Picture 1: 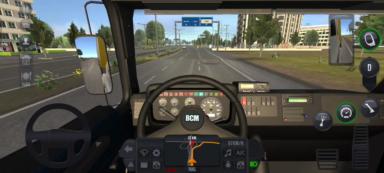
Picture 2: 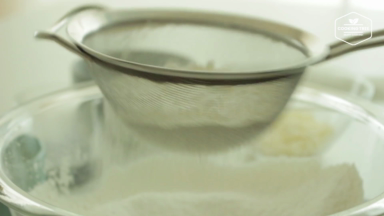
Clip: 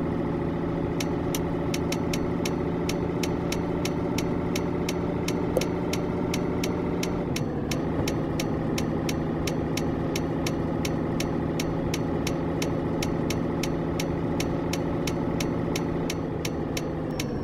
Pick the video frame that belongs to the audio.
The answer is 1